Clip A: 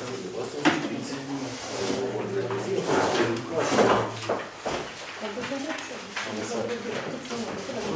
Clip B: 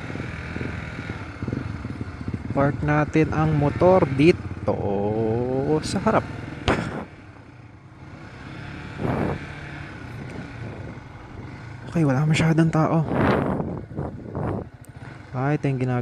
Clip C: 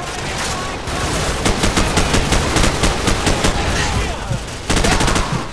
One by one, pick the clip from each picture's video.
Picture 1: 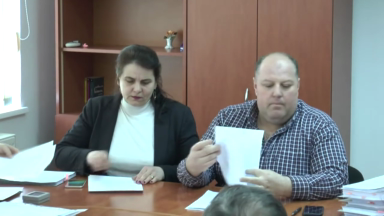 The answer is A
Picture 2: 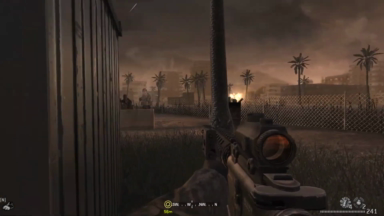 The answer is C